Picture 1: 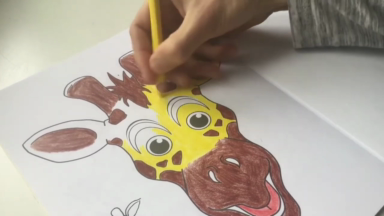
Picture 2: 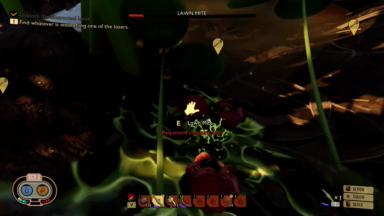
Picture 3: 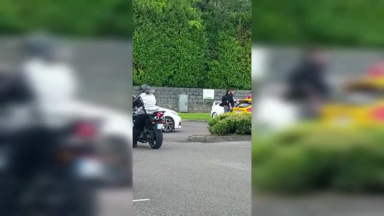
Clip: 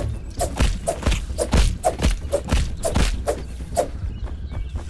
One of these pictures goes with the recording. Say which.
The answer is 2